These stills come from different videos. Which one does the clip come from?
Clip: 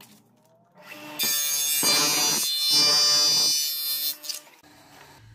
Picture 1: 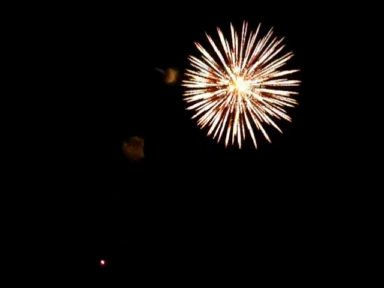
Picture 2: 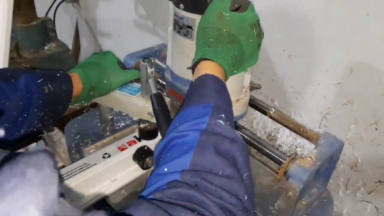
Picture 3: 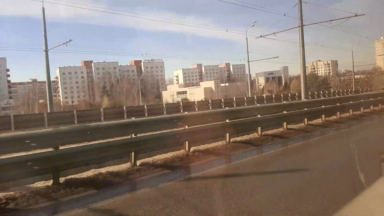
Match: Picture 2